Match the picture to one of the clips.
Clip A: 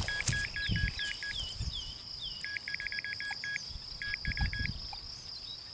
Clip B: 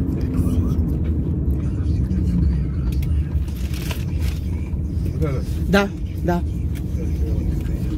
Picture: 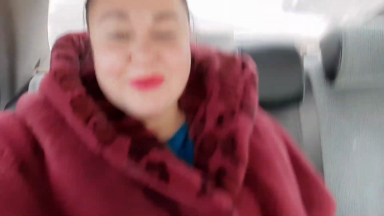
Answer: B